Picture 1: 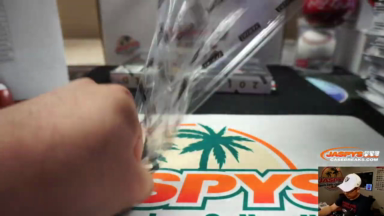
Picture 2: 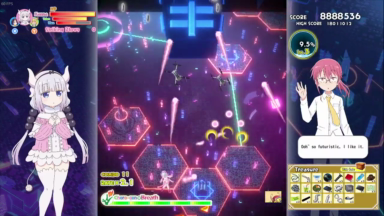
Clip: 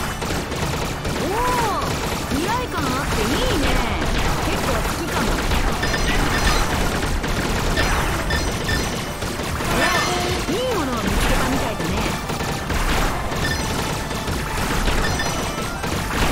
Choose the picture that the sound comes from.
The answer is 2